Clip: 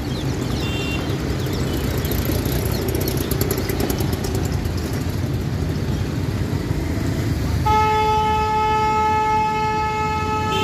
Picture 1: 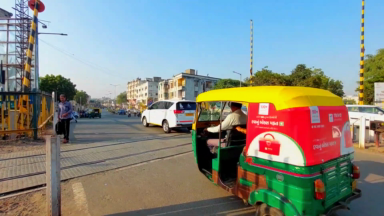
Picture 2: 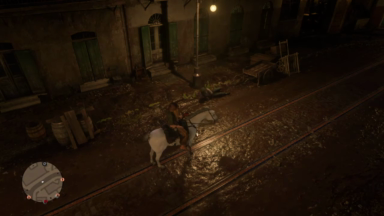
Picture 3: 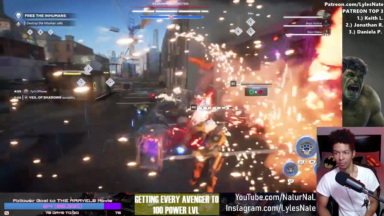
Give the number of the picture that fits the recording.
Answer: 1